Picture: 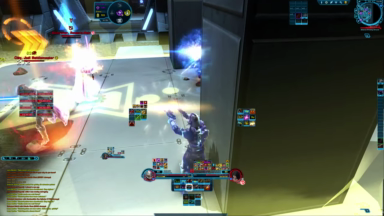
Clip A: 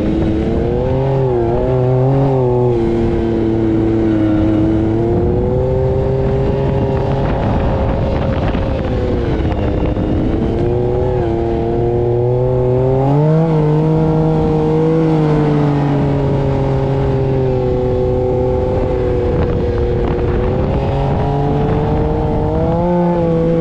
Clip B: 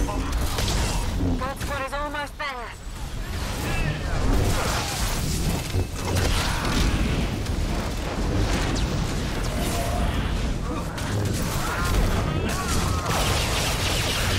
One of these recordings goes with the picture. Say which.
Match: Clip B